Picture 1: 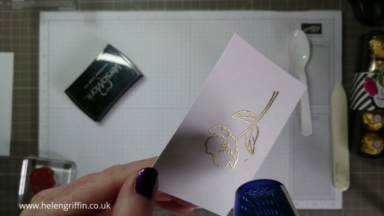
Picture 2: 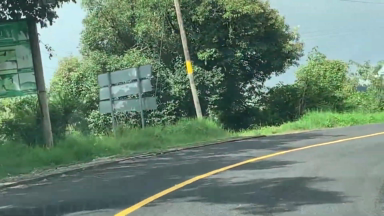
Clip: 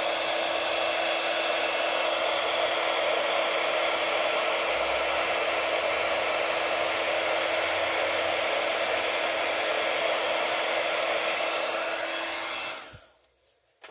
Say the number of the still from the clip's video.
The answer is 1